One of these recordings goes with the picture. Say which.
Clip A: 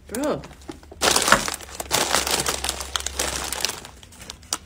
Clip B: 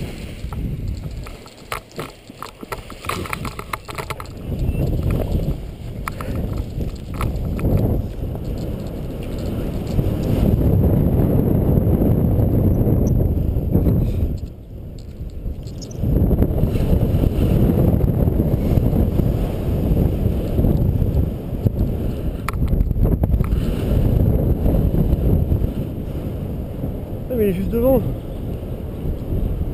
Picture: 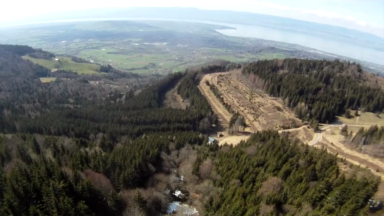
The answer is B